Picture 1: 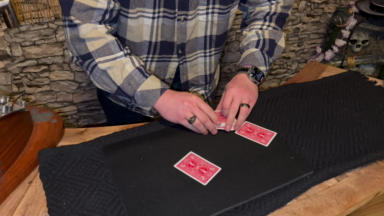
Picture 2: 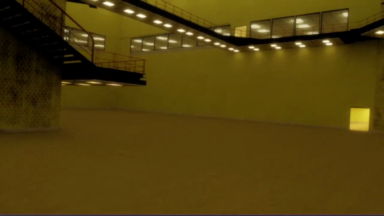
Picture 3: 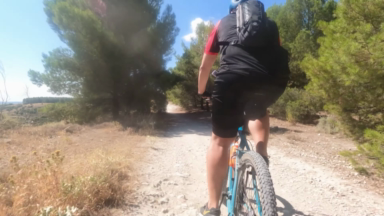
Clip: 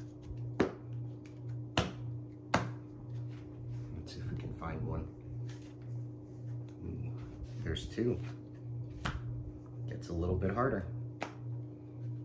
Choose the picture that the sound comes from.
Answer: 1